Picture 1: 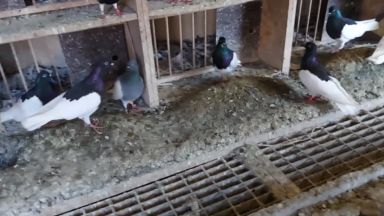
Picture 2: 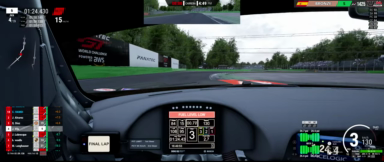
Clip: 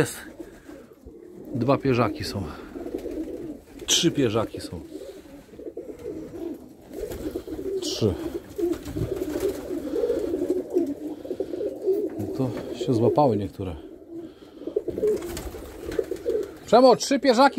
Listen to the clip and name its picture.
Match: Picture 1